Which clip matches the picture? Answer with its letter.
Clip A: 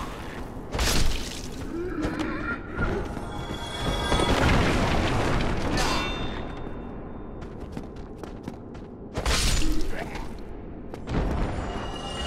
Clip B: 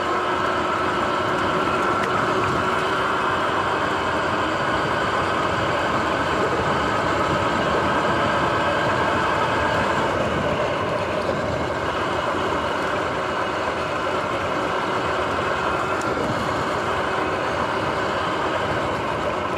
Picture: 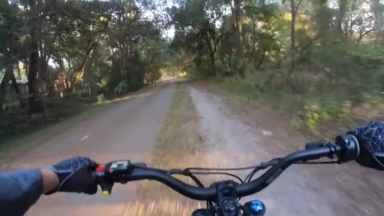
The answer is B